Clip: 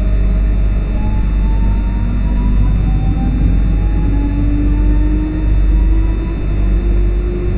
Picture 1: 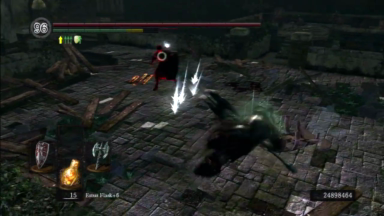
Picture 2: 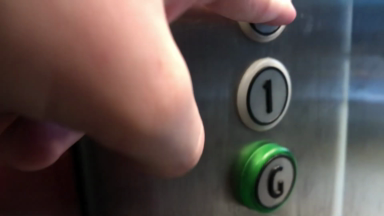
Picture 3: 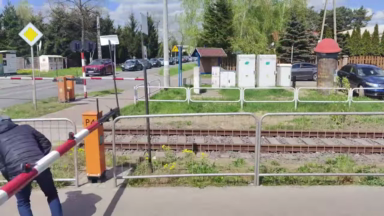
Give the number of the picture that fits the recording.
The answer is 3